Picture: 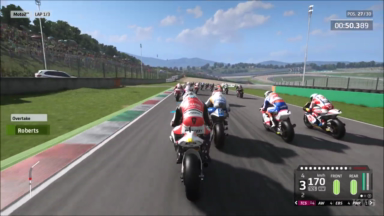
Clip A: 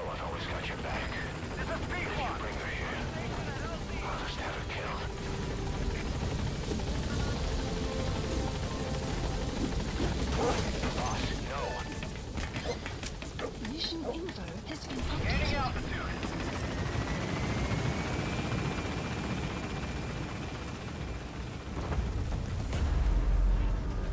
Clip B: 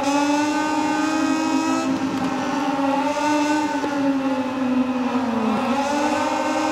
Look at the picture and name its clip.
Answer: B